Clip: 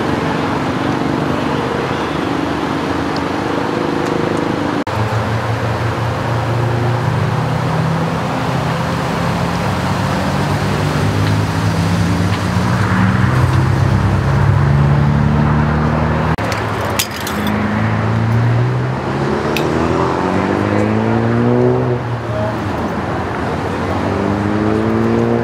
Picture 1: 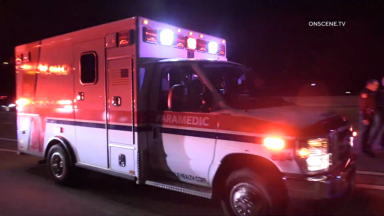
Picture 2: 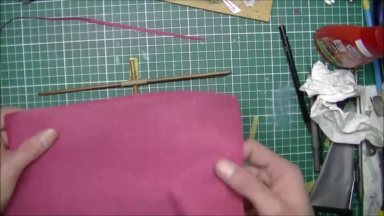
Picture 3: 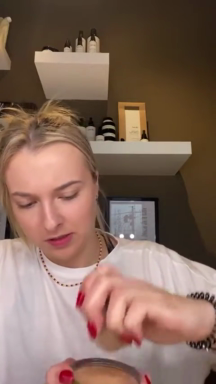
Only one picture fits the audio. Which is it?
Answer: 1